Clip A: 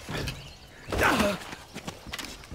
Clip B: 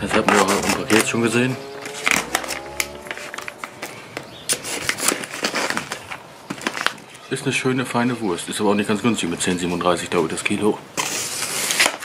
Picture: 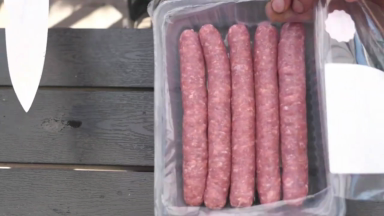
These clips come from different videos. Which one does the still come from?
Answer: B